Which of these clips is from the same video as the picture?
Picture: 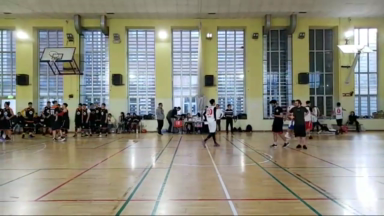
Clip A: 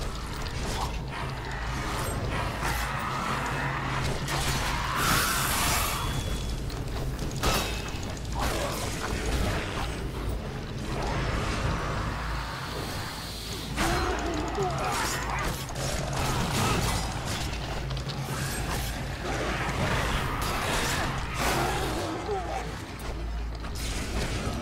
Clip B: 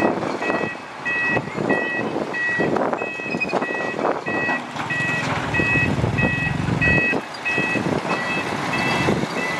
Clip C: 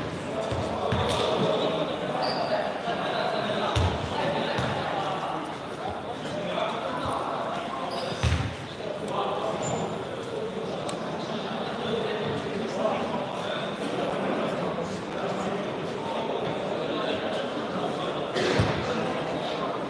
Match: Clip C